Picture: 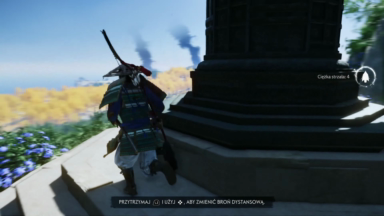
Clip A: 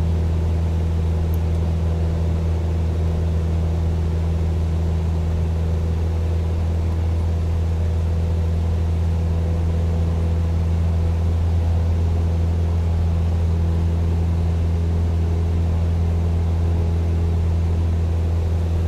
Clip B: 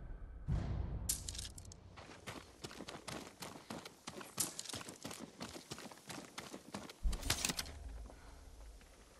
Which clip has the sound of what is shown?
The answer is B